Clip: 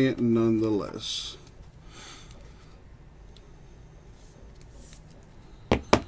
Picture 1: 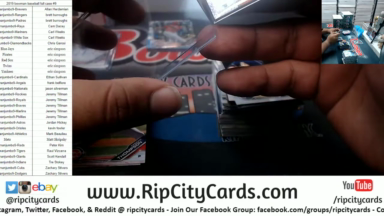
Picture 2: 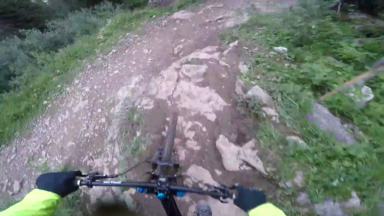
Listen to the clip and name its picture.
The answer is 1